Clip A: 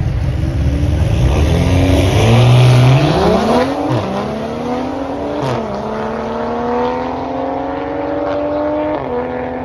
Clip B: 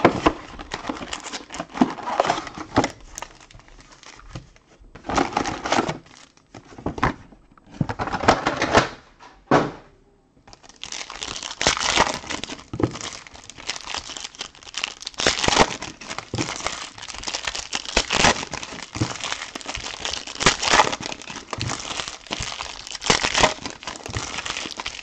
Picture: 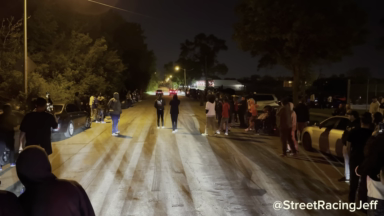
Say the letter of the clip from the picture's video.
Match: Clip A